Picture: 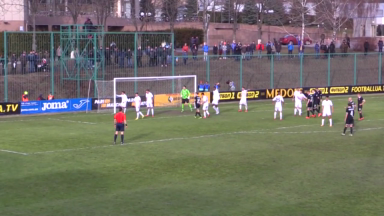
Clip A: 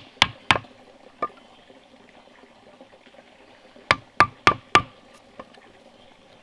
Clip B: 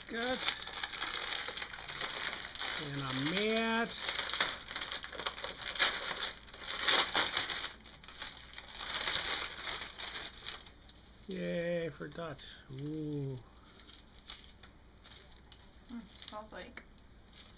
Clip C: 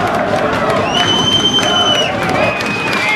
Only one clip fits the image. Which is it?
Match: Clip C